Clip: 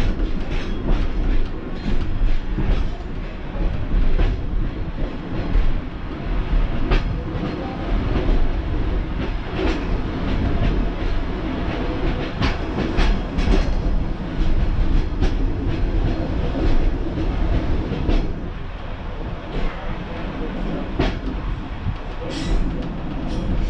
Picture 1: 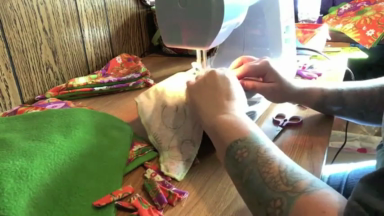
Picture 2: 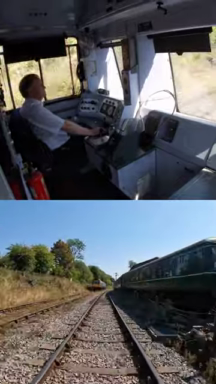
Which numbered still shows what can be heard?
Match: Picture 2